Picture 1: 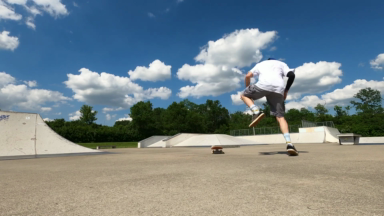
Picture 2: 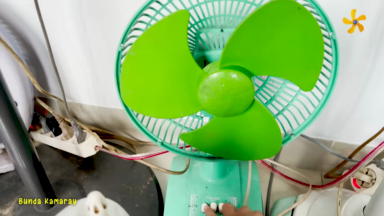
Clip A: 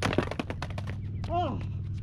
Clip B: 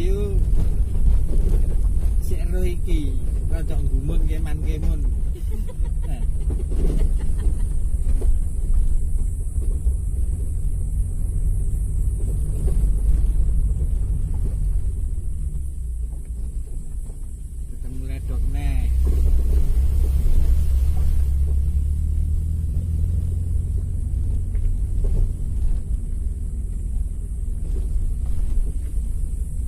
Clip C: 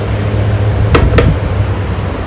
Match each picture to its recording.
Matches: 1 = A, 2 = C